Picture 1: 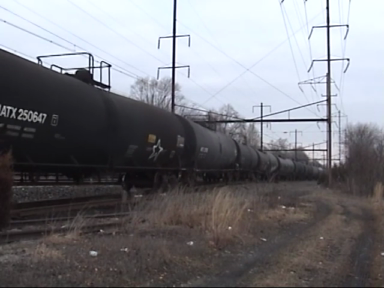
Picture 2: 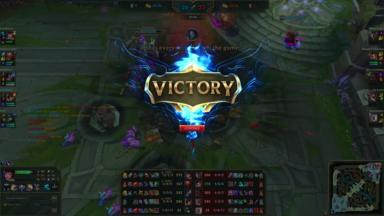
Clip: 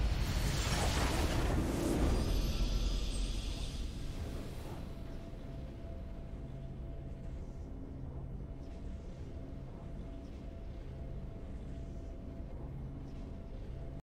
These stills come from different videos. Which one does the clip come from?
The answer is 2